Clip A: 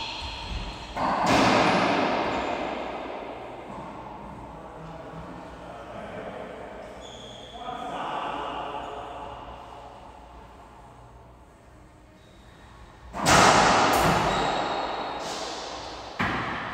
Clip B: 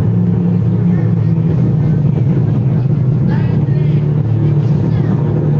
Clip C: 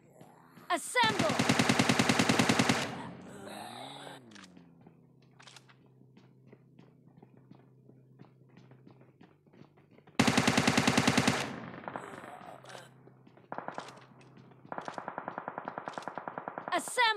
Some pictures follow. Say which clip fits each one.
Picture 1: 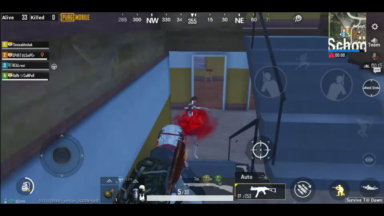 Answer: C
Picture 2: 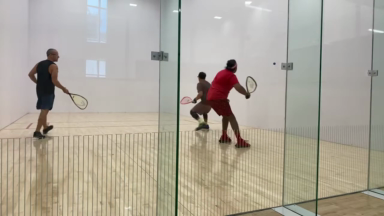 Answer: A